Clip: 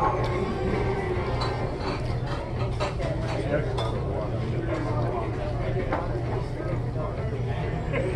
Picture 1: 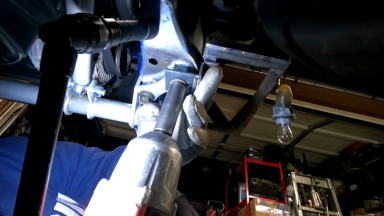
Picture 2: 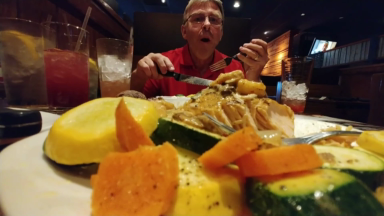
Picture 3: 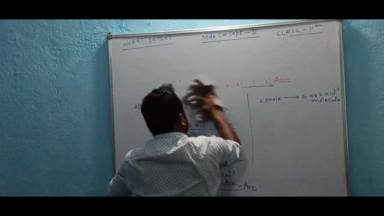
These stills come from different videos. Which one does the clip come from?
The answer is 2